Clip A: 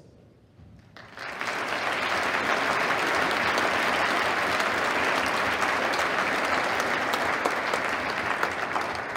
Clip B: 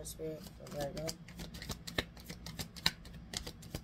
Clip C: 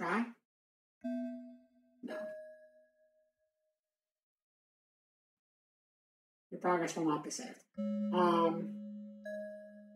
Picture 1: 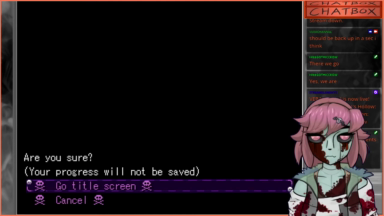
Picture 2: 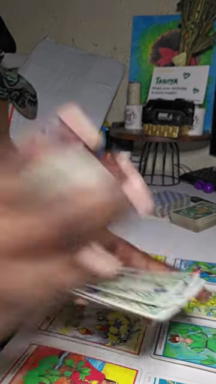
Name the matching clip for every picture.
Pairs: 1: C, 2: B